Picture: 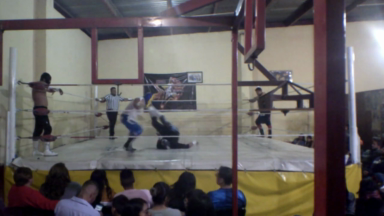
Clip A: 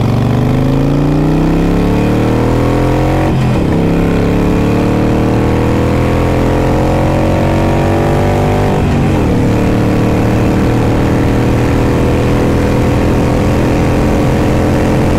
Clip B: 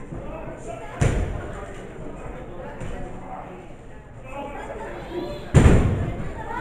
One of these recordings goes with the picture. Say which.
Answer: B